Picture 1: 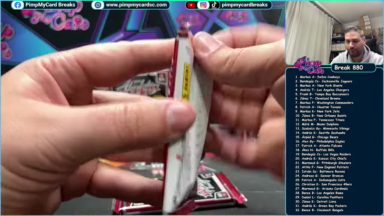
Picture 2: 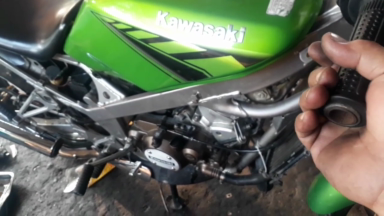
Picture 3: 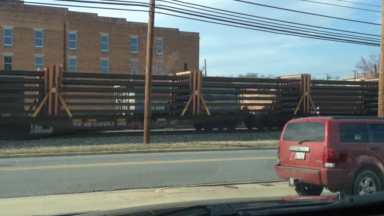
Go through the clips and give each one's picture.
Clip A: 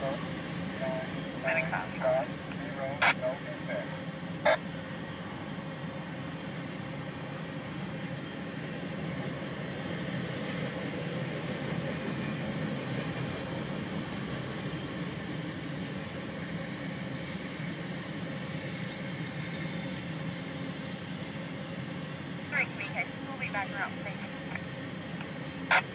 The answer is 3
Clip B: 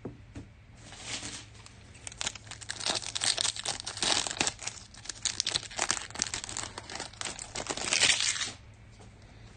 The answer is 1